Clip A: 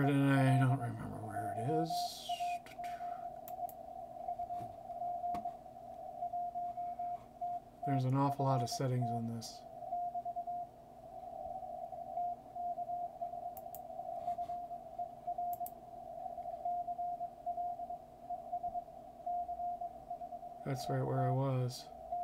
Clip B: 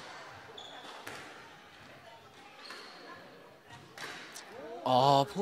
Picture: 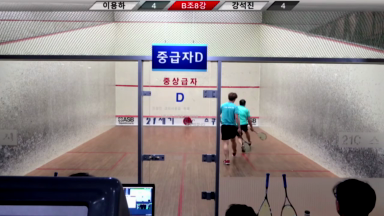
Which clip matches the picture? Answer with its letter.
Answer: B